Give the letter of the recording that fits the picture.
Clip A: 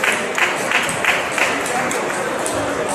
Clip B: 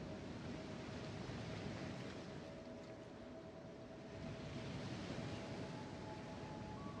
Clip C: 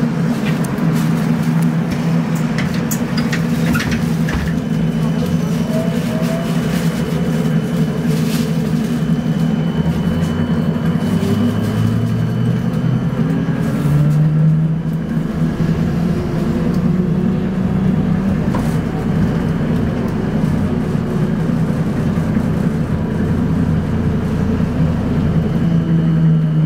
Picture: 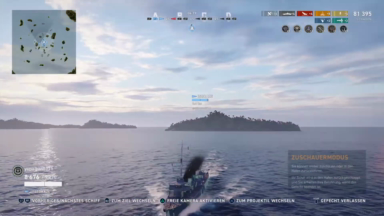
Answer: B